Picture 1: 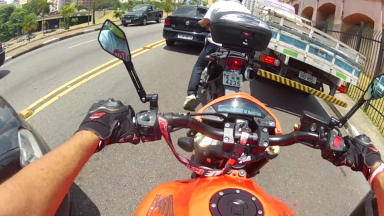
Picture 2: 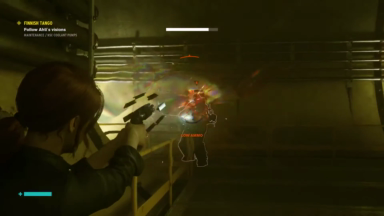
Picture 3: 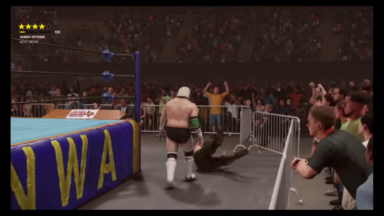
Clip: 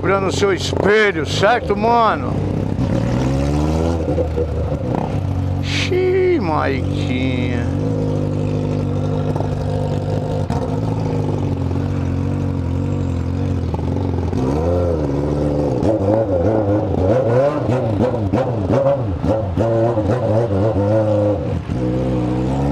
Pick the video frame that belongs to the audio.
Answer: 1